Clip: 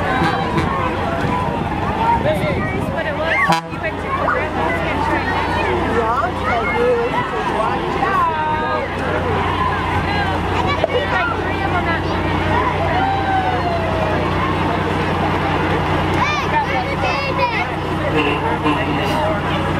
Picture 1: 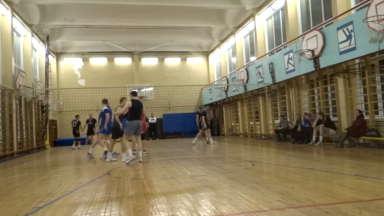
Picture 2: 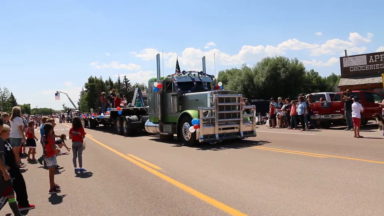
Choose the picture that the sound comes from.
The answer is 2